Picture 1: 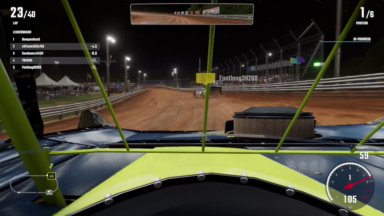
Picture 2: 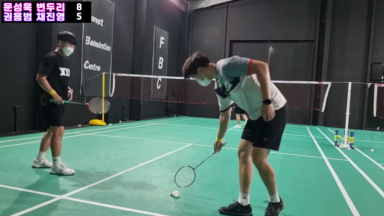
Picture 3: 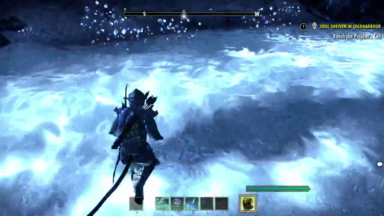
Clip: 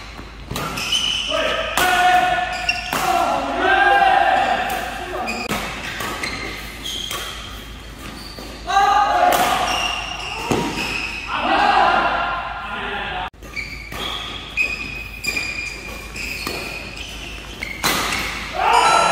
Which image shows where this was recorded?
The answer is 2